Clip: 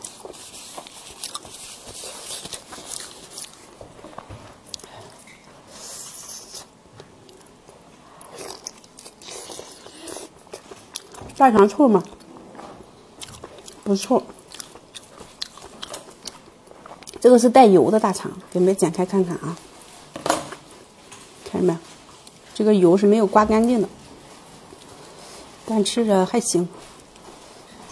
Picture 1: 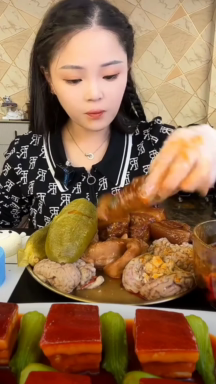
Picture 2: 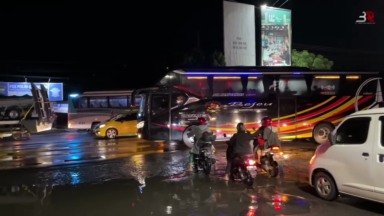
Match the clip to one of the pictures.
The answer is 1